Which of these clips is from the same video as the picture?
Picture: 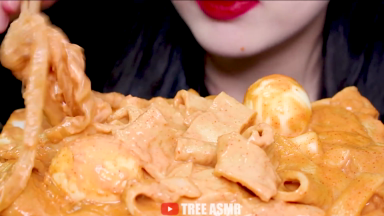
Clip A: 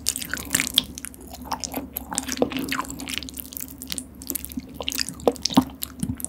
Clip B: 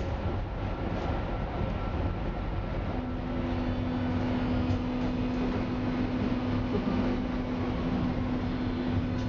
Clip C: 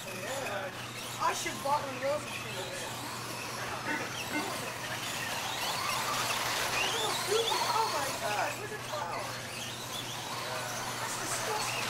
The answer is A